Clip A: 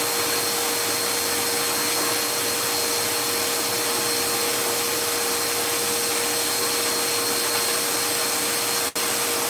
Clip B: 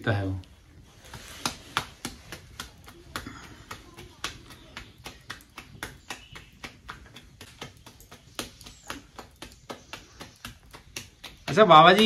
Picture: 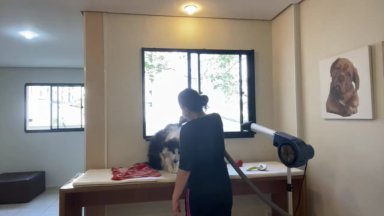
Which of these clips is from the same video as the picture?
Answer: A